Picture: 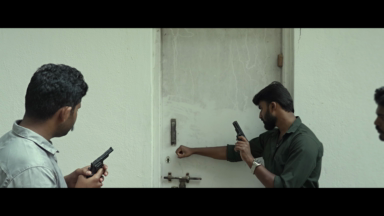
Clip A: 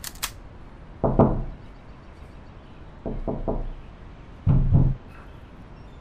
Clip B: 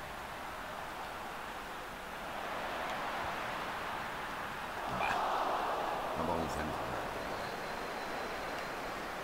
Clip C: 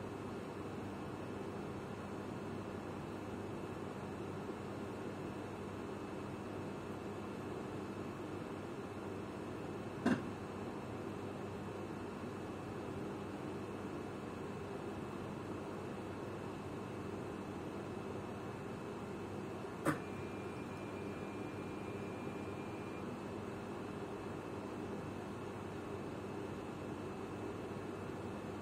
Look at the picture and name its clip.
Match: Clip A